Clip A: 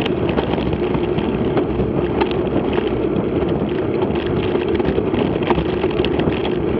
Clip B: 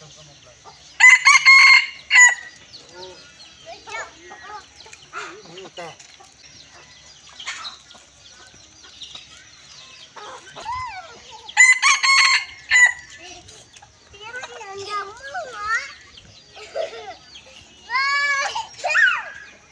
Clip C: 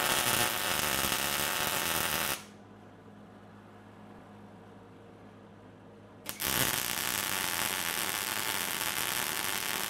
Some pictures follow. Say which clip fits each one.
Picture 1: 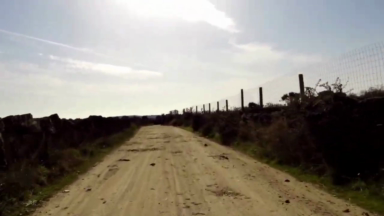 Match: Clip A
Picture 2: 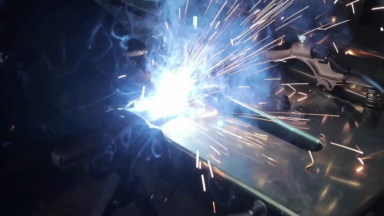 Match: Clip C